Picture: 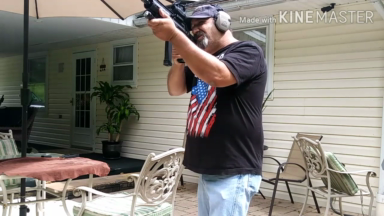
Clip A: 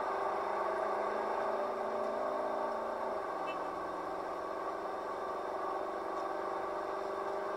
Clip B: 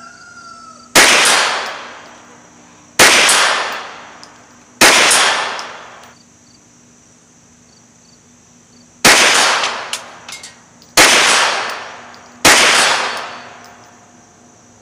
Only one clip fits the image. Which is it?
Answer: B